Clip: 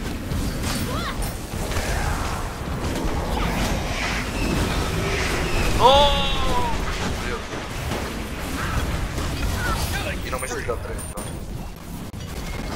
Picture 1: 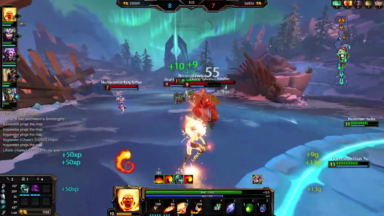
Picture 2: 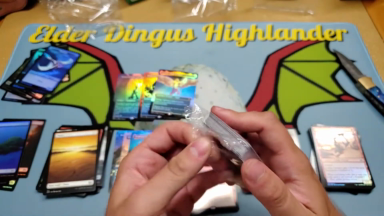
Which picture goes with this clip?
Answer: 1